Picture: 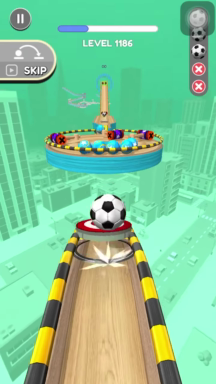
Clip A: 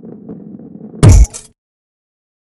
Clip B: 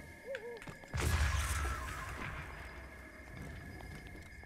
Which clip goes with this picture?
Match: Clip A